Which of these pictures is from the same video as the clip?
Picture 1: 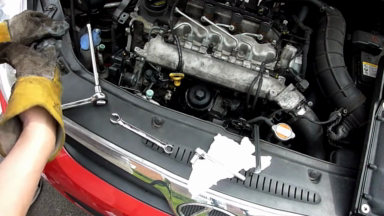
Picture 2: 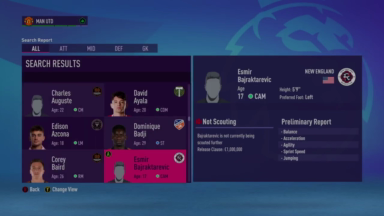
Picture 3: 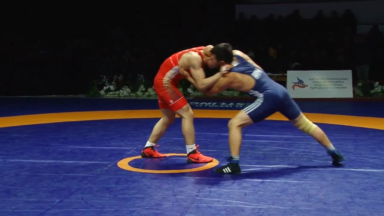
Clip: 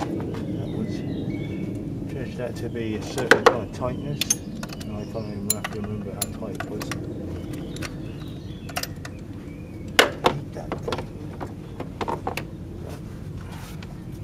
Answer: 1